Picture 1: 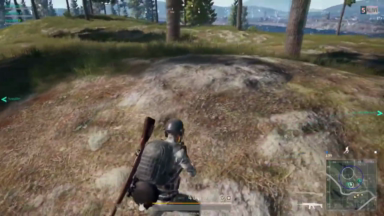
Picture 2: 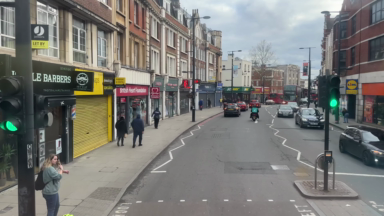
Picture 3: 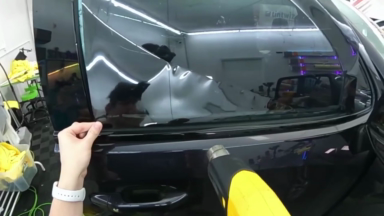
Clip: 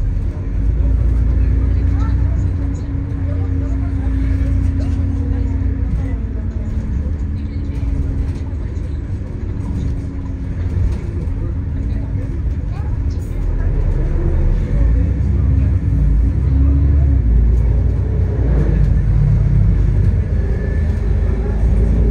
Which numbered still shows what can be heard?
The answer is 2